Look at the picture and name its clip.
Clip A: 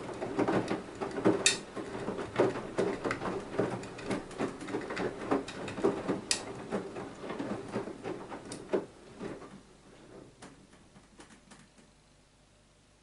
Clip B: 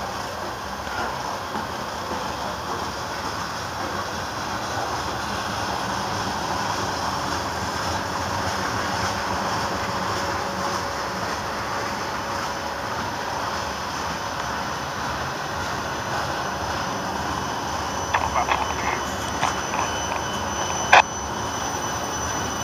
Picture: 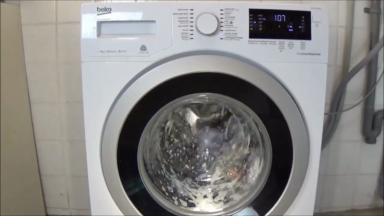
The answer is A